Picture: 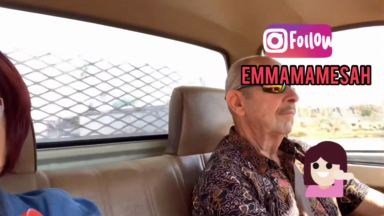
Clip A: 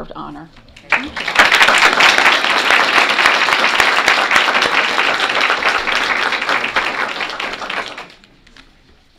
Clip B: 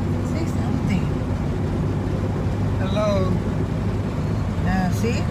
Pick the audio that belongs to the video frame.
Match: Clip B